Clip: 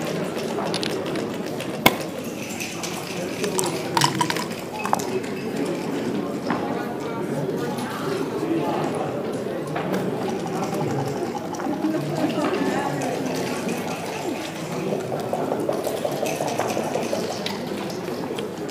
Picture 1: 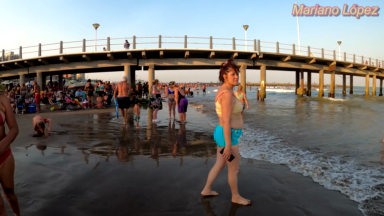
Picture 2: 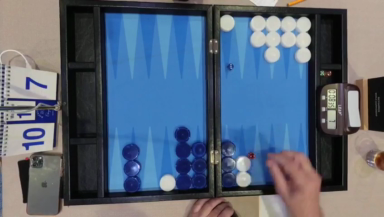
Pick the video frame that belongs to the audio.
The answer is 2